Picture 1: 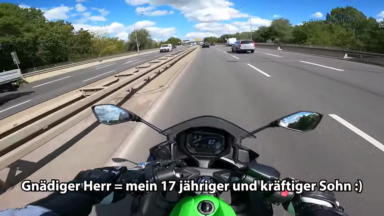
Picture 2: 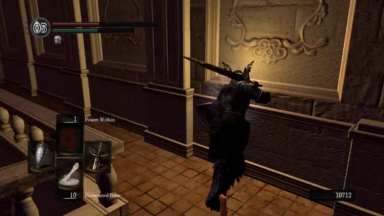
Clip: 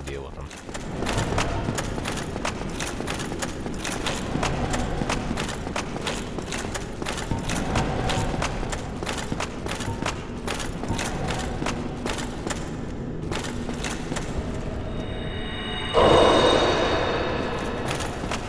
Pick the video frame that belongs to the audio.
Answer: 2